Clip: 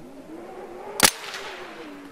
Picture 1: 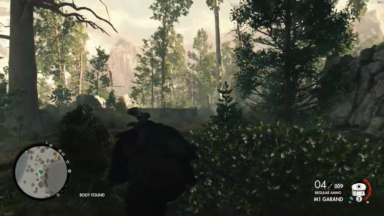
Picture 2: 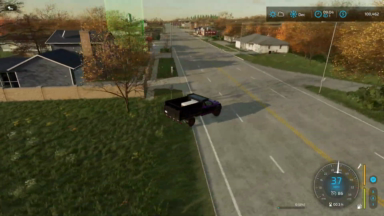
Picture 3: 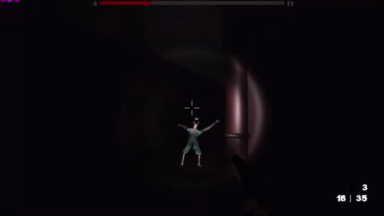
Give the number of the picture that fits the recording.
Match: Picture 3